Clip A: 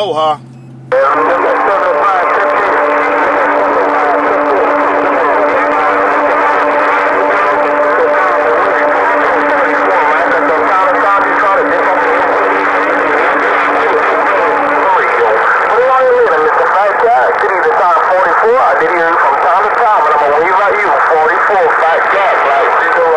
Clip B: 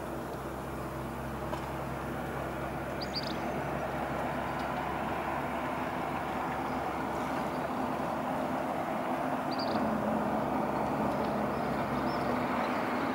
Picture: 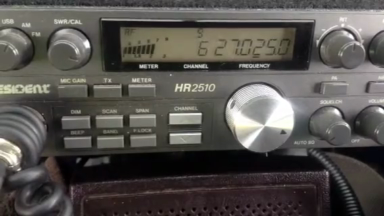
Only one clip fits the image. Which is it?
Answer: A